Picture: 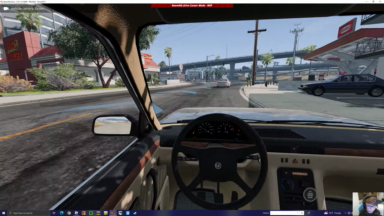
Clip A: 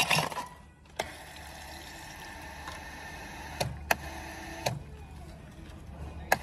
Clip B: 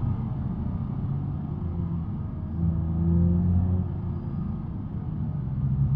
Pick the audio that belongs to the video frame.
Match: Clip B